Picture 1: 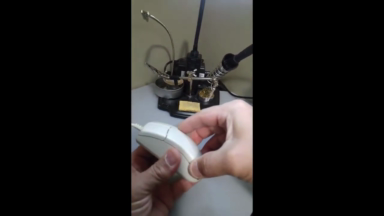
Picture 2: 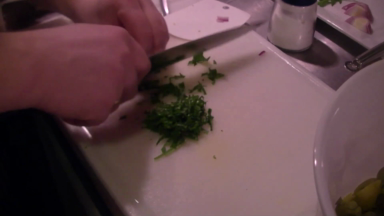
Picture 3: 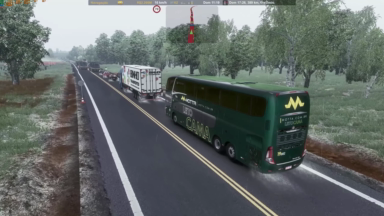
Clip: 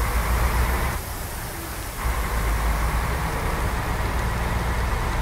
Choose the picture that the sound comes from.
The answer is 3